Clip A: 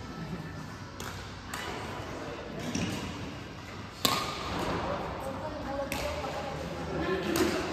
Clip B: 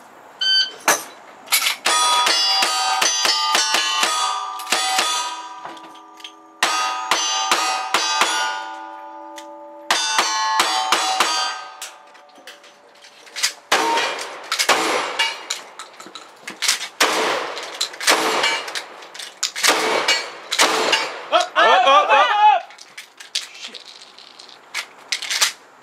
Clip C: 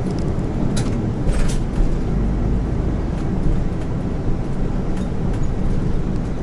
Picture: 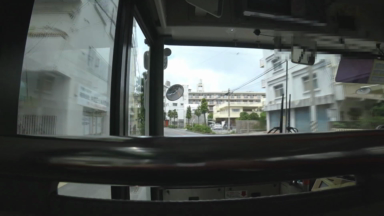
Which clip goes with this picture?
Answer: C